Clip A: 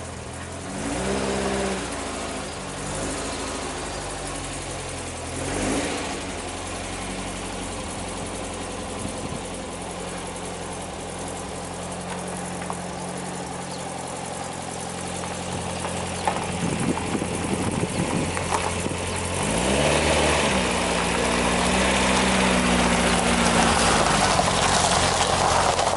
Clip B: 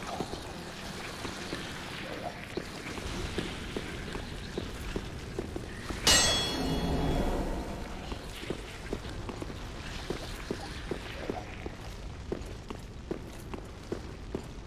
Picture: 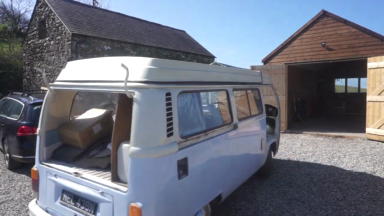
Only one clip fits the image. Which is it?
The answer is A